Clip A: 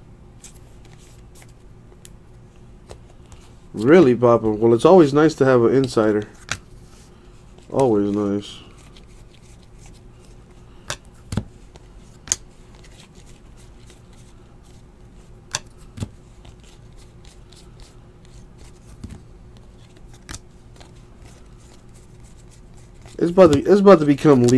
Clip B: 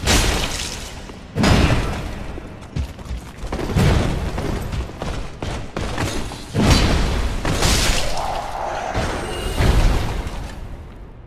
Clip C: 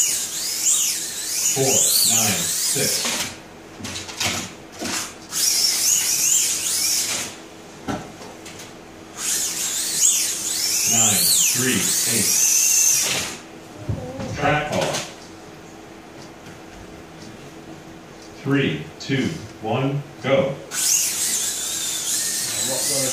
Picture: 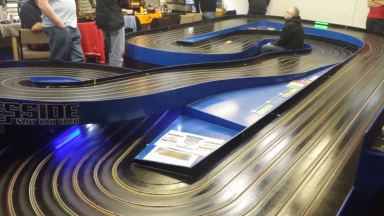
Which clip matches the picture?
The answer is C